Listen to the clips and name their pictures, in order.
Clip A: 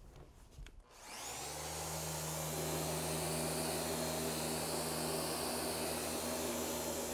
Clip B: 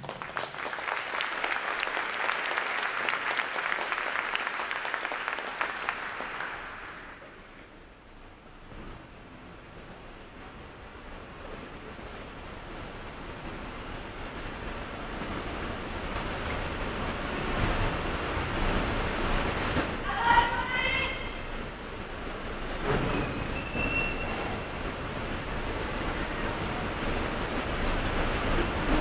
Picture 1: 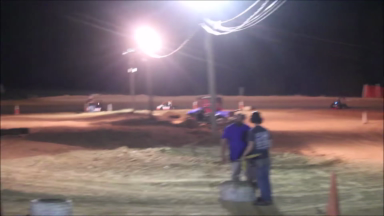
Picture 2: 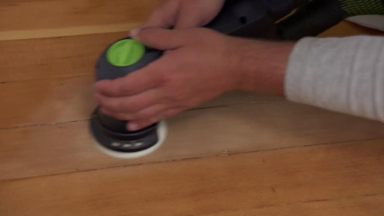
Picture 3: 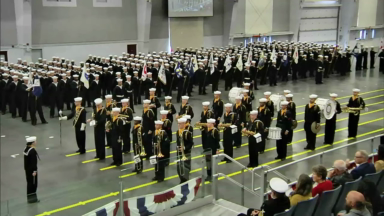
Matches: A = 2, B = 3